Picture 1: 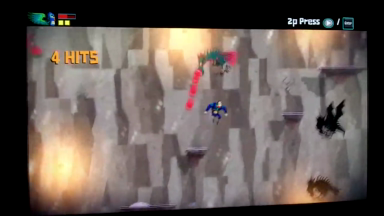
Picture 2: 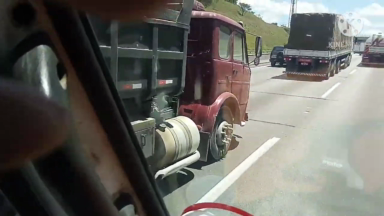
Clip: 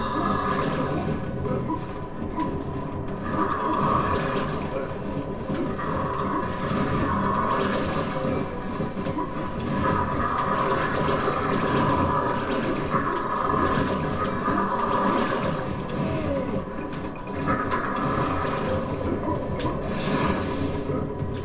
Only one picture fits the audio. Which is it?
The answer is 1